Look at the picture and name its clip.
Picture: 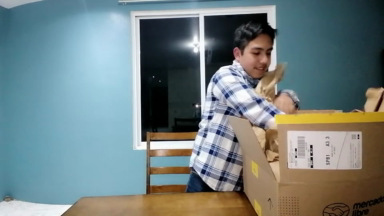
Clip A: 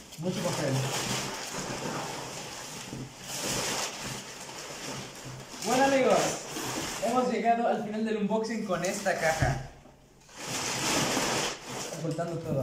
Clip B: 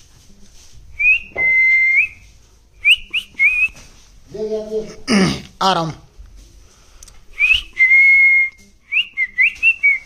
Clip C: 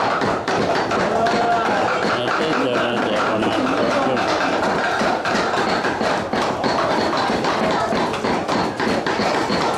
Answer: A